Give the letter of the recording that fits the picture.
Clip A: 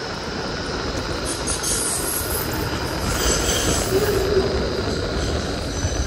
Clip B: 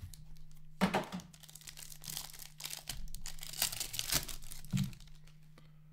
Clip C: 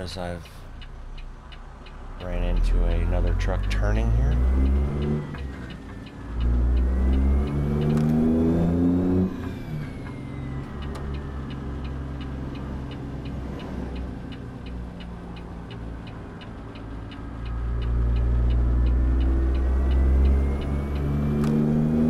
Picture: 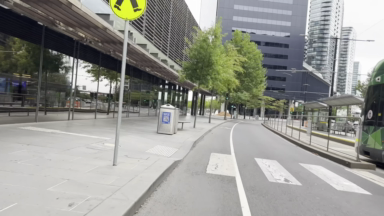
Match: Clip A